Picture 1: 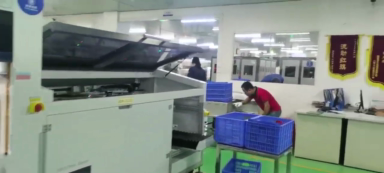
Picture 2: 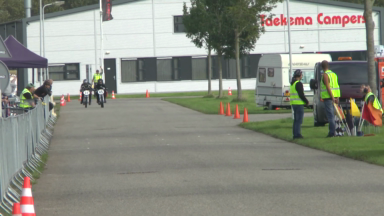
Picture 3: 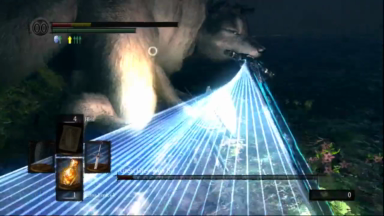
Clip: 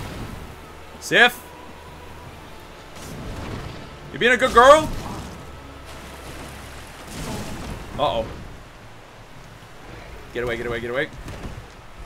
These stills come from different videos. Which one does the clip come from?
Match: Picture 3